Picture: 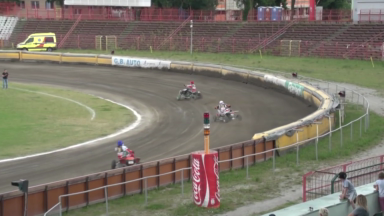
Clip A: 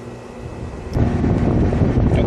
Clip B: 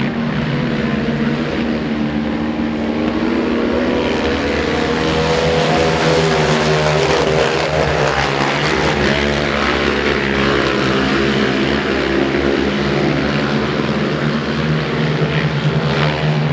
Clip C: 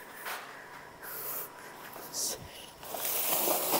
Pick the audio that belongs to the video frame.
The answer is B